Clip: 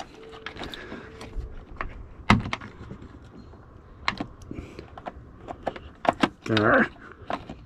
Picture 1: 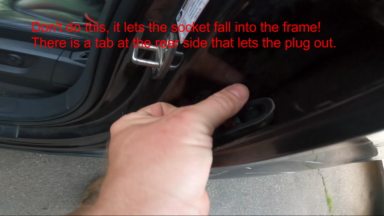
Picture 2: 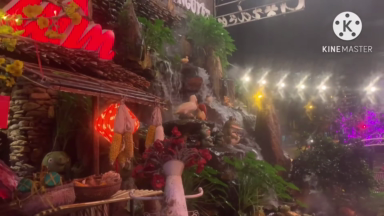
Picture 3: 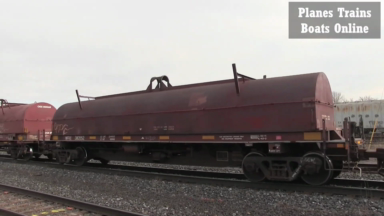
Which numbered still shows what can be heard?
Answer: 1